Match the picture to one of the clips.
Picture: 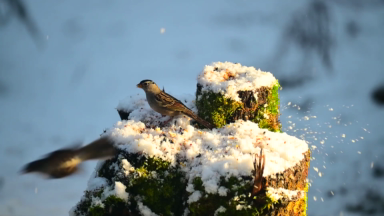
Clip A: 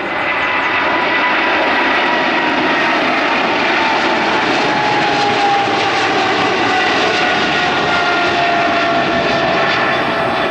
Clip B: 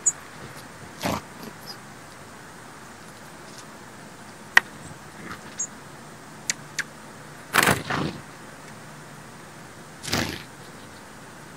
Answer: B